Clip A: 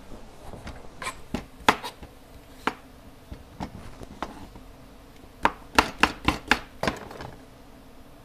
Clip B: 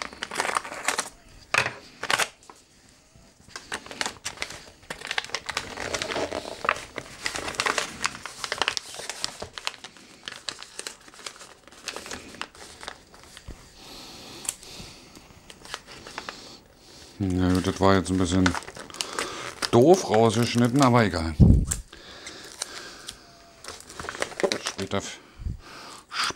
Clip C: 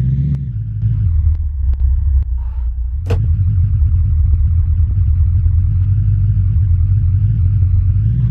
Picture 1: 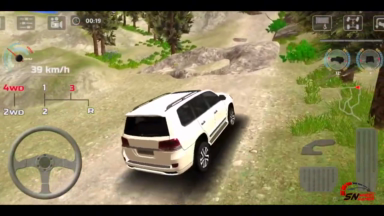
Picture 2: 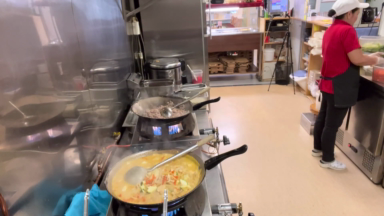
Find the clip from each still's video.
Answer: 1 C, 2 A